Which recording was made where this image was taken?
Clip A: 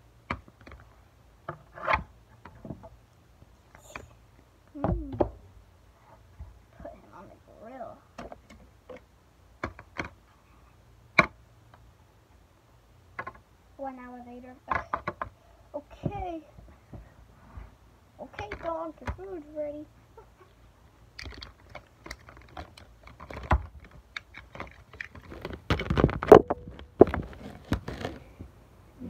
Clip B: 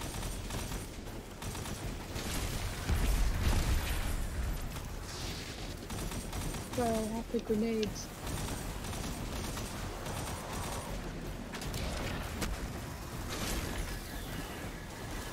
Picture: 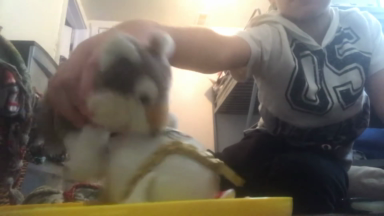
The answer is A